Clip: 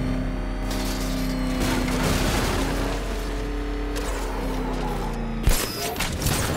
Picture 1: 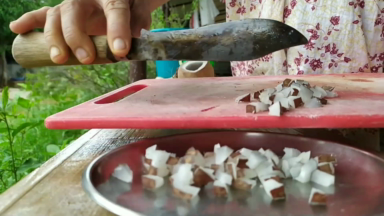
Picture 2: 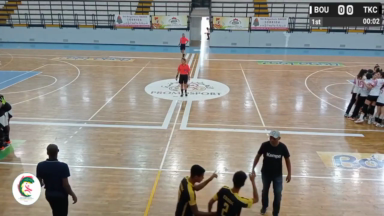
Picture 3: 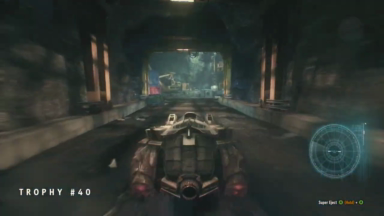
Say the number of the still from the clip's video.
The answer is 3